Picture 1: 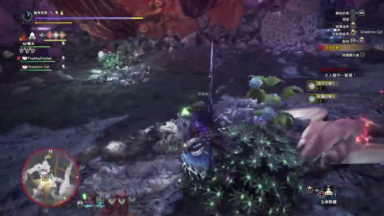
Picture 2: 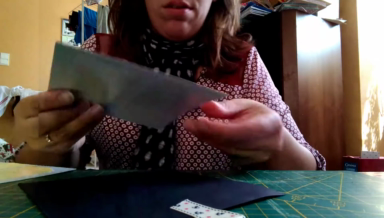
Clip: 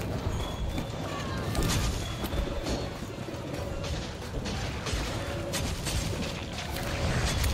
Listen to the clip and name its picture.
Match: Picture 1